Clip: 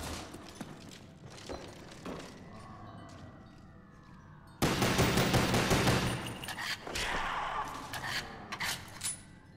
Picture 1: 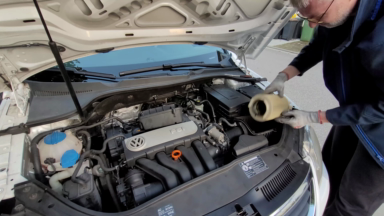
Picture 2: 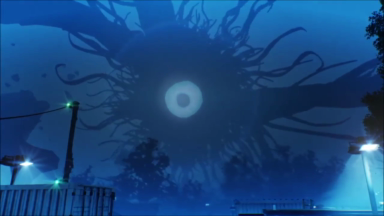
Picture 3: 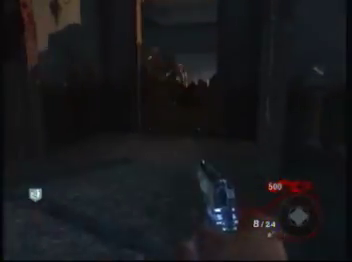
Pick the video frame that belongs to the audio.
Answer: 3